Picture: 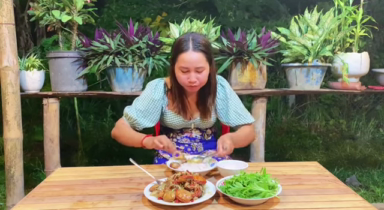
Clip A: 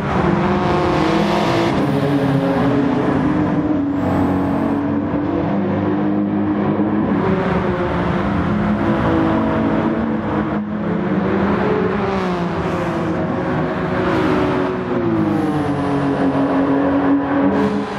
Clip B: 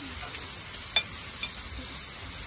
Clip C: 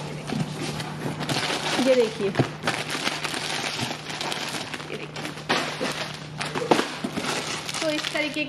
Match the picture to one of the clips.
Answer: B